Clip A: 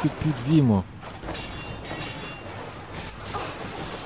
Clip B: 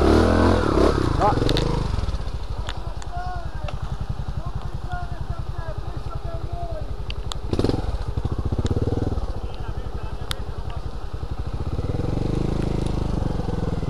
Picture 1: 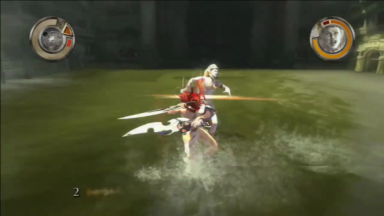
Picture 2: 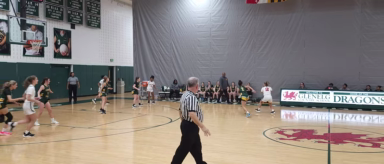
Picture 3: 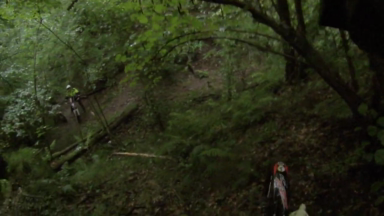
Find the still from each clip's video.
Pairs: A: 1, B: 3